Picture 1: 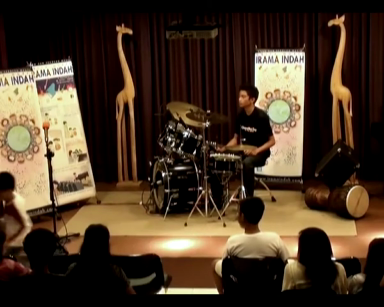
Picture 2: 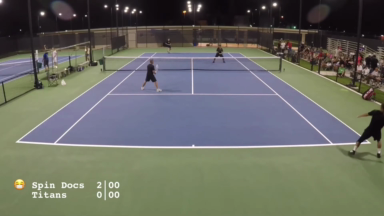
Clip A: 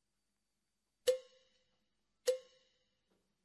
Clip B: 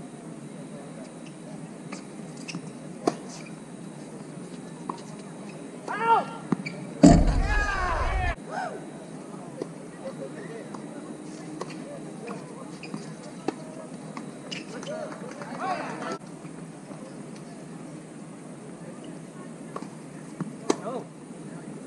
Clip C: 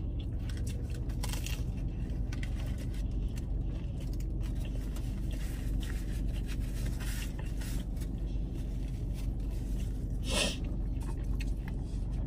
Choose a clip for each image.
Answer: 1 A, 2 B